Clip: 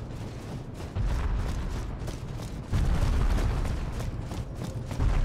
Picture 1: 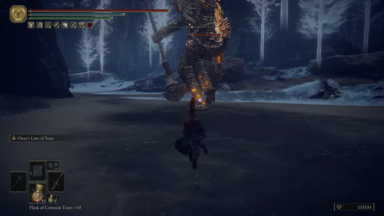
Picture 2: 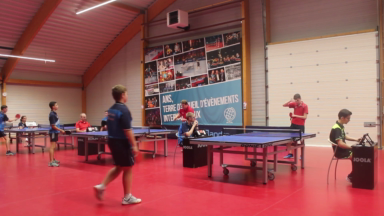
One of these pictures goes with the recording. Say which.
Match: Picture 1